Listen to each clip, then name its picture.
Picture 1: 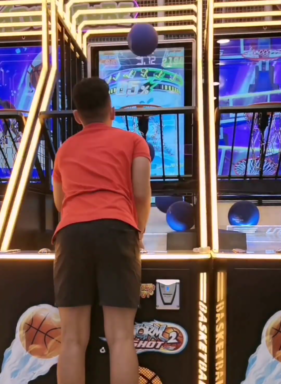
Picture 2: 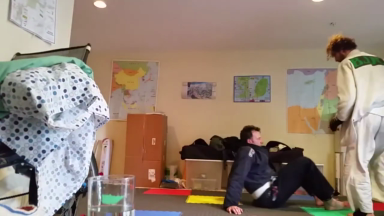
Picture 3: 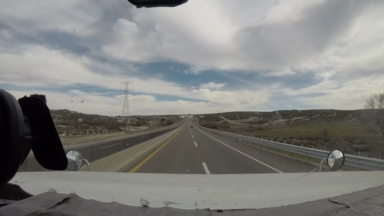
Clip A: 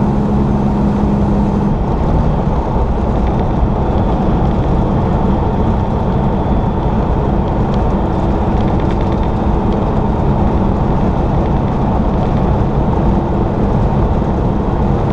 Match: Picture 3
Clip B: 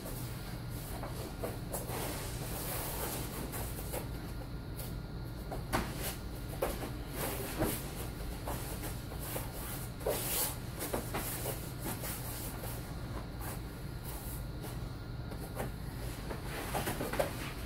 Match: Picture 2